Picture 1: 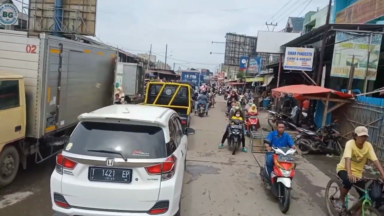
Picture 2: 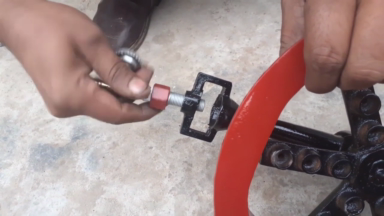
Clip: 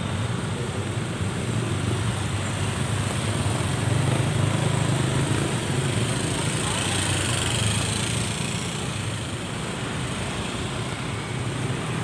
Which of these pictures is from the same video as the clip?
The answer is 1